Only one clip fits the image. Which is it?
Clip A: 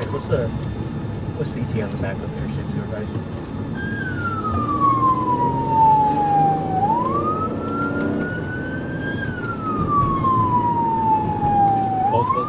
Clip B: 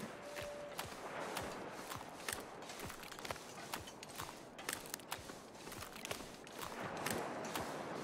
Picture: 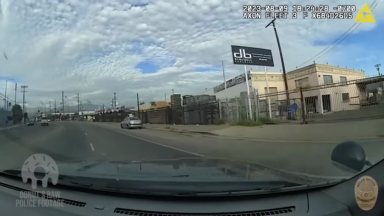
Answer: A